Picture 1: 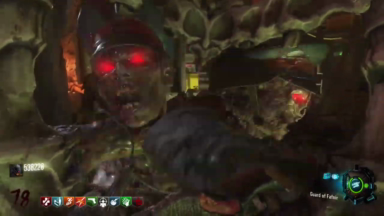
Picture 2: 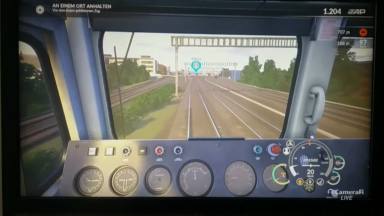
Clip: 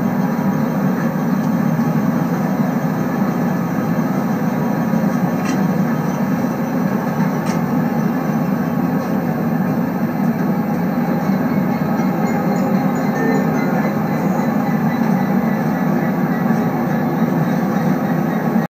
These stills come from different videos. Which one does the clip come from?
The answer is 2